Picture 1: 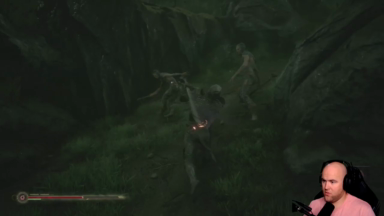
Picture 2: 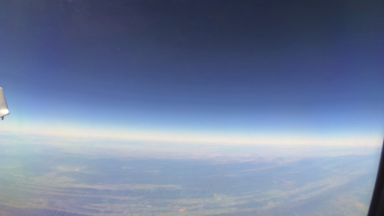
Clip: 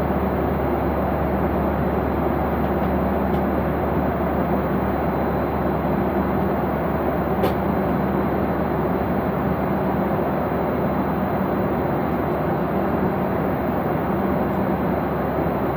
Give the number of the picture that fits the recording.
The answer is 2